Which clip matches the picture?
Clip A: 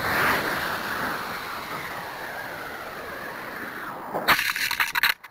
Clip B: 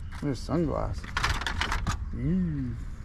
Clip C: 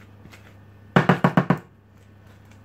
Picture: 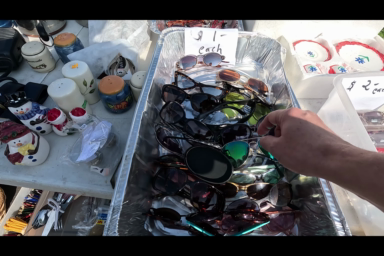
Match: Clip B